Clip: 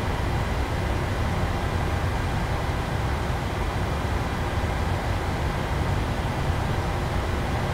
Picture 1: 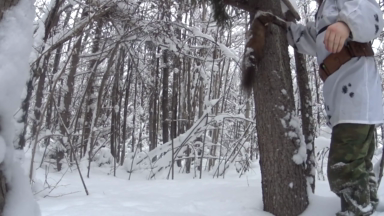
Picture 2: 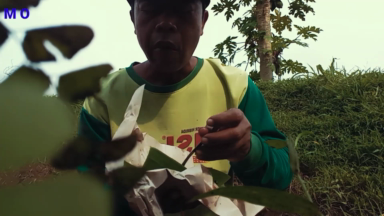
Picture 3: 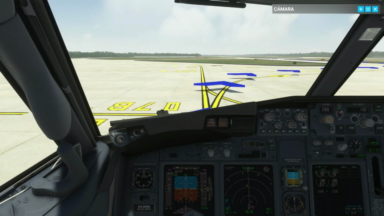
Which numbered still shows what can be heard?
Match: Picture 3